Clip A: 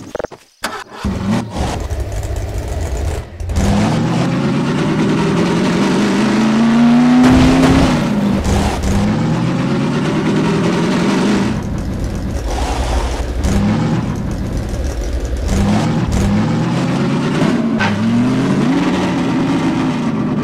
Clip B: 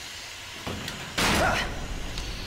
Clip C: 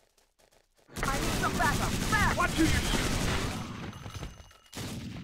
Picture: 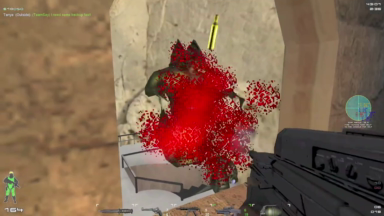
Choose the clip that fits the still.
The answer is C